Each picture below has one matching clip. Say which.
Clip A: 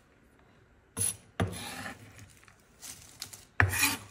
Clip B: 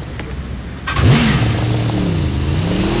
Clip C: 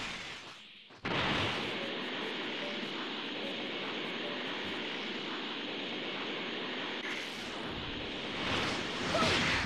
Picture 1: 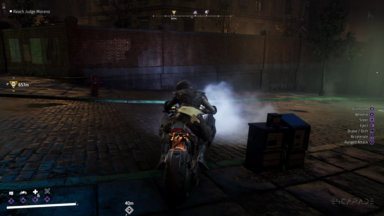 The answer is B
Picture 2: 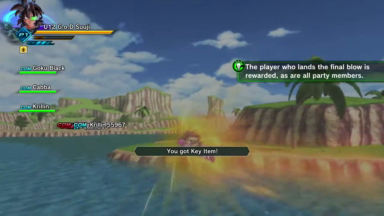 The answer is C